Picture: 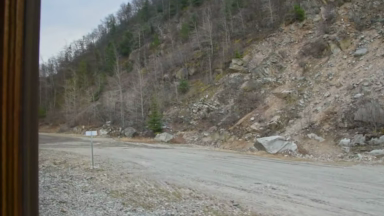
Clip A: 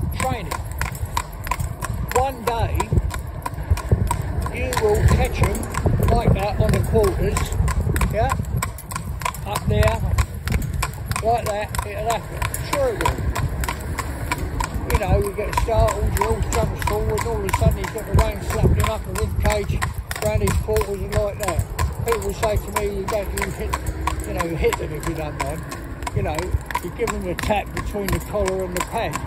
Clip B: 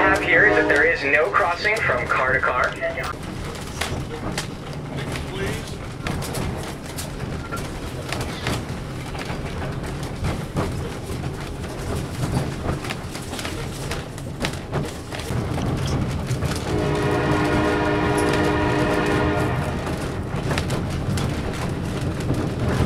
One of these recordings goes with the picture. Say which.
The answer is B